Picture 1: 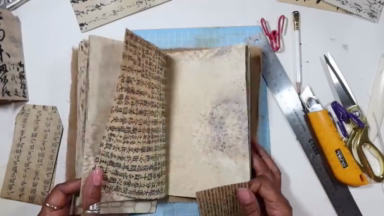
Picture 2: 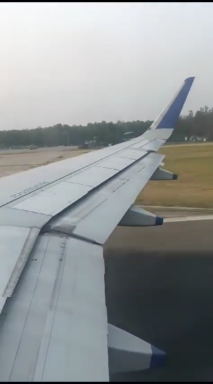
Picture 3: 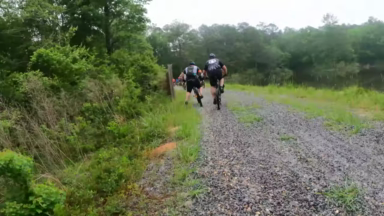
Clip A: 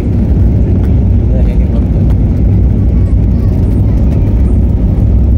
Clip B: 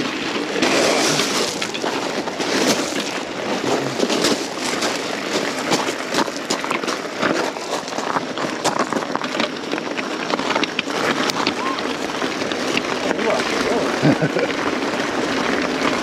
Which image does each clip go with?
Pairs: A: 2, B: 3